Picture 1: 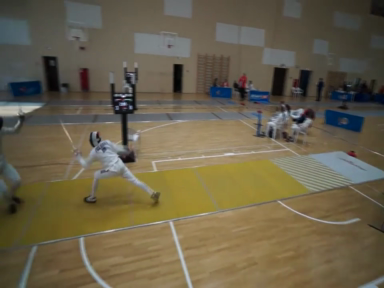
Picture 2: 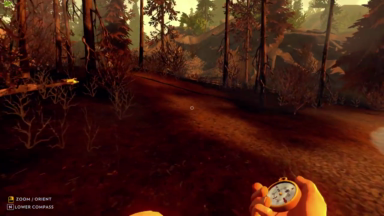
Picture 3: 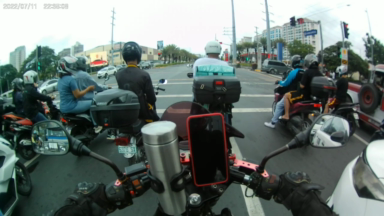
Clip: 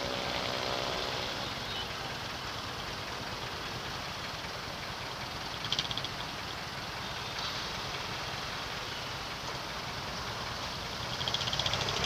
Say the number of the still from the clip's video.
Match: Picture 3